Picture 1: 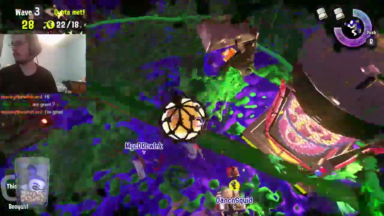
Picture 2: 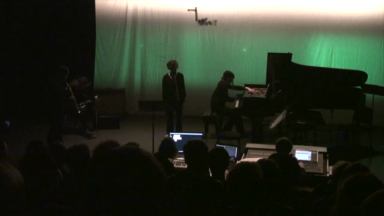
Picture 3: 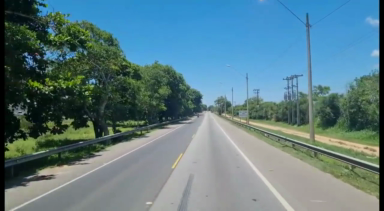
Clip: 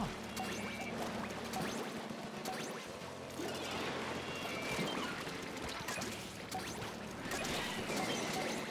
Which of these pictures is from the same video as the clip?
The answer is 1